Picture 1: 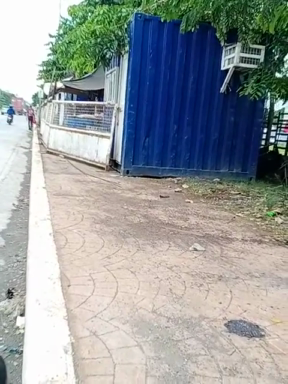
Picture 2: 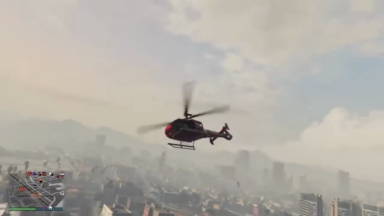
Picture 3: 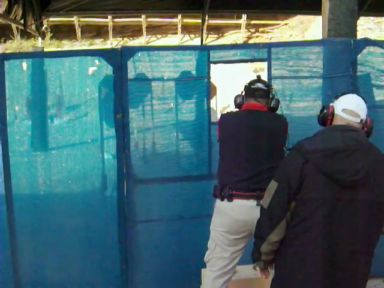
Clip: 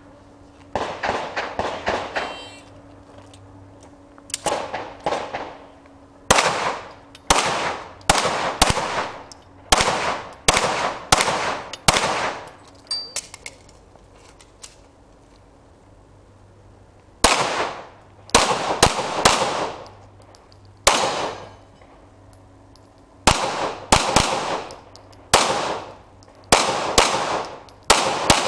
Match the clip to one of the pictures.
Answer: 3